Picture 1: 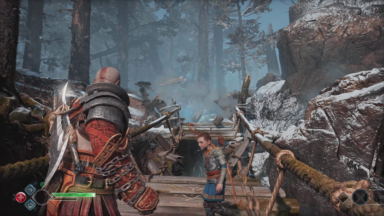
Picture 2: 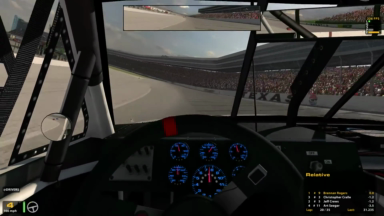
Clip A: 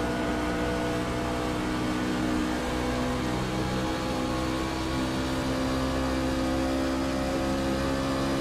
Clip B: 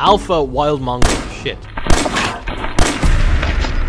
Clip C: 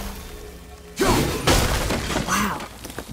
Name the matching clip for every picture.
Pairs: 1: C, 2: A